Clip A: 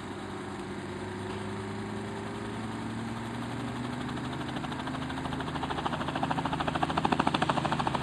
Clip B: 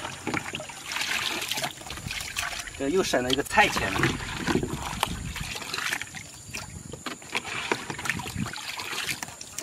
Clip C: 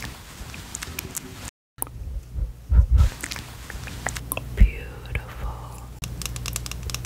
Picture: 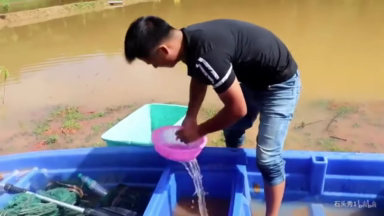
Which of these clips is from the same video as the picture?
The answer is B